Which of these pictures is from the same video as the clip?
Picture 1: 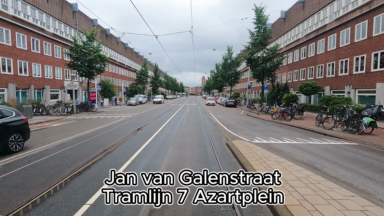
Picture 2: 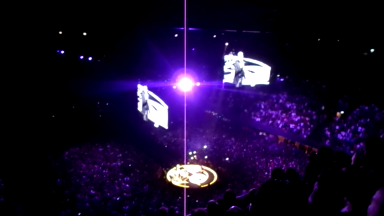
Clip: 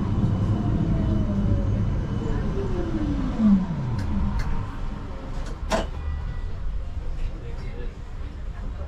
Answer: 1